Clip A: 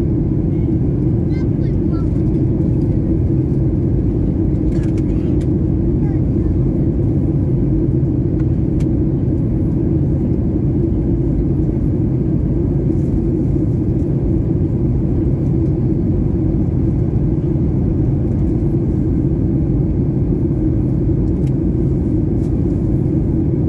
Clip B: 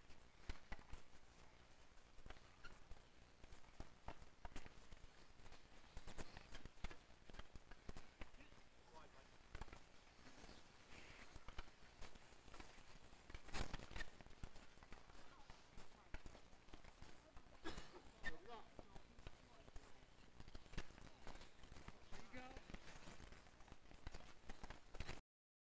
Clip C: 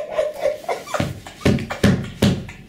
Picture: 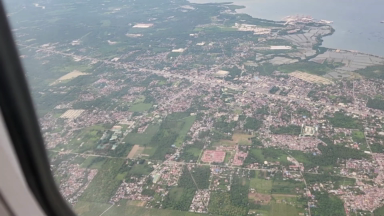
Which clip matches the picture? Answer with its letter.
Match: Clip A